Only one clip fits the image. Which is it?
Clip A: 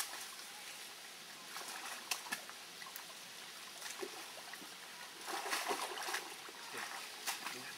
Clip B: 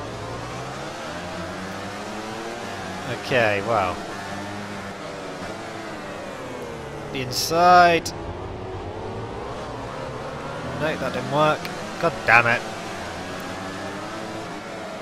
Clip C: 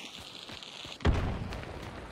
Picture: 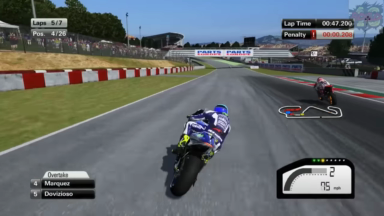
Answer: B